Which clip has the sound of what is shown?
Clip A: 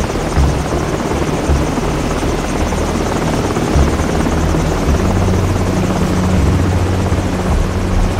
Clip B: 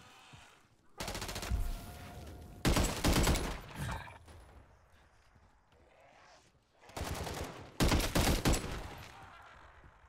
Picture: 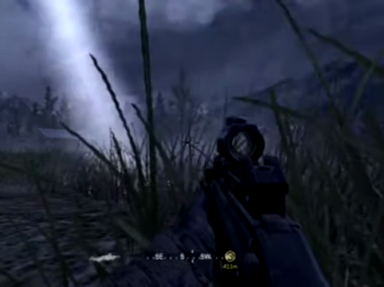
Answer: A